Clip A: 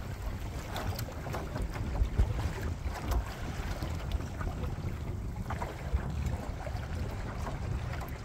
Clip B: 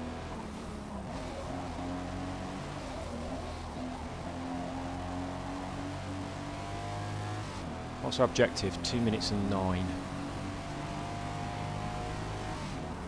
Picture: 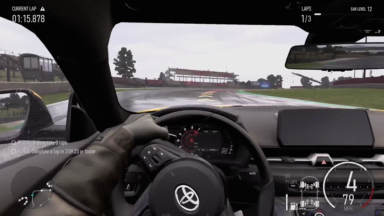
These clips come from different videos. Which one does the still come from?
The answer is B